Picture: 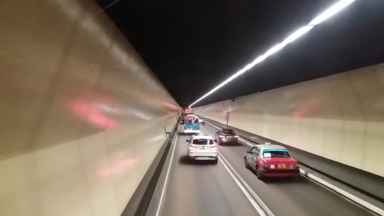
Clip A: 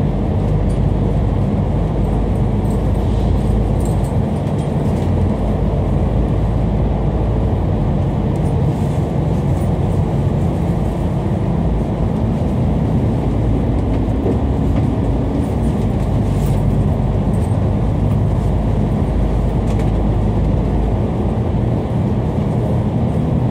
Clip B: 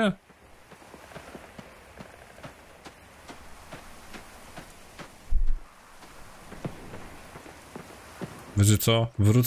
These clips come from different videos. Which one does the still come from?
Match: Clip A